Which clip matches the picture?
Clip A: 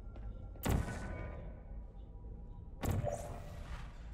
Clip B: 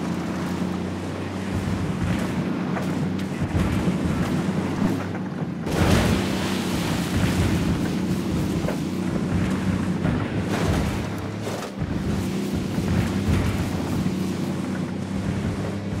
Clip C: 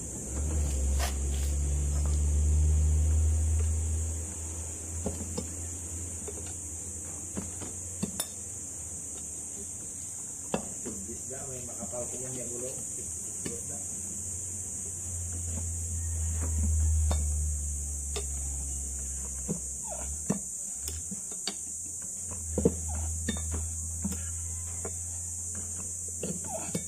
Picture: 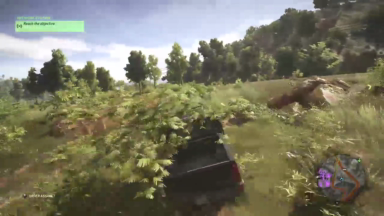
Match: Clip B